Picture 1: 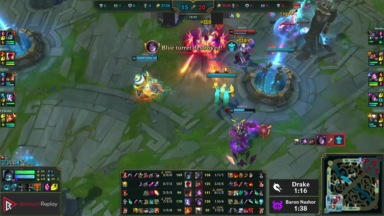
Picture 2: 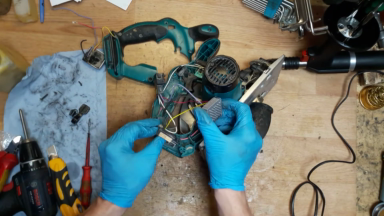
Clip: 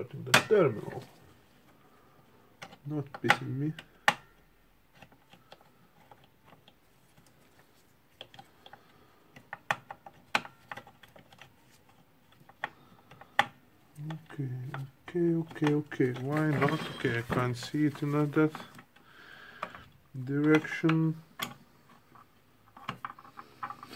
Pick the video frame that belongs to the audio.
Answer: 2